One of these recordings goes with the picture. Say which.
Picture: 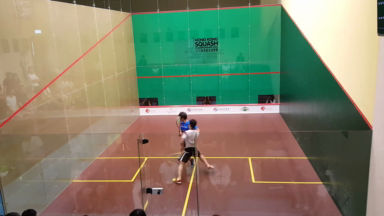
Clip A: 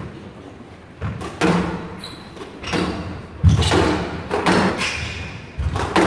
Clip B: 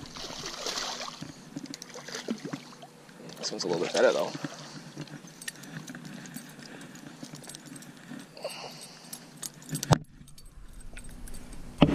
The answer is A